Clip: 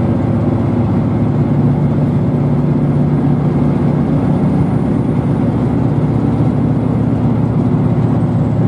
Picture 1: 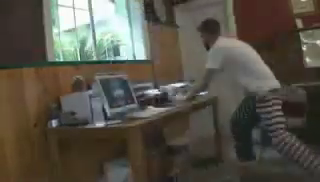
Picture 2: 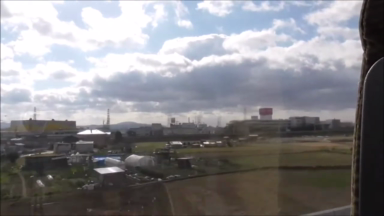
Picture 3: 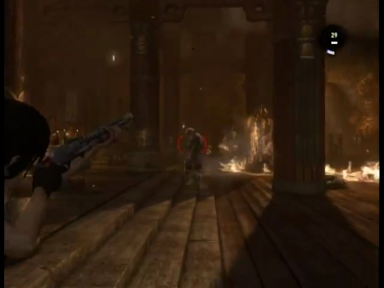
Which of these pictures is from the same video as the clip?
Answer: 2